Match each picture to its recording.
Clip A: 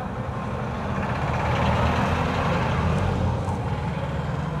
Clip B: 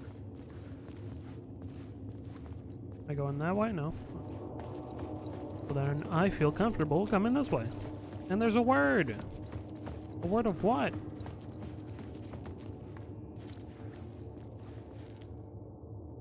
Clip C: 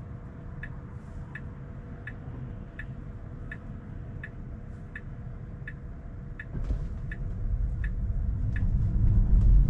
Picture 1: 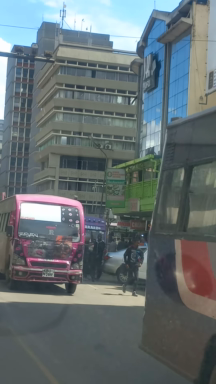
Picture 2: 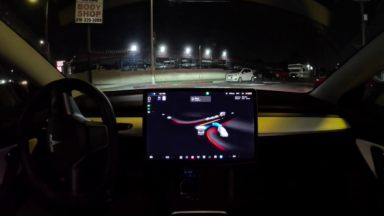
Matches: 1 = A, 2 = C